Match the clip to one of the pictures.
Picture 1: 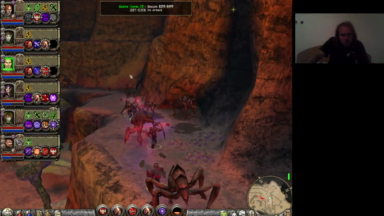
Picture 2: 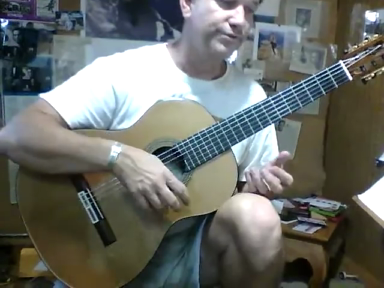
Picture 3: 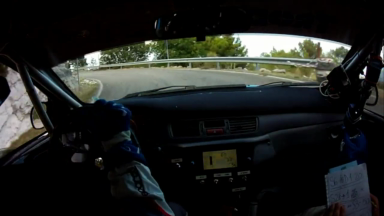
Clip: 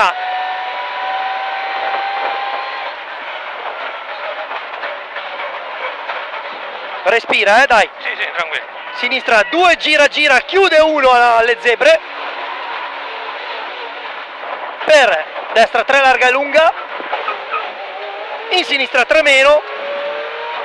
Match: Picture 3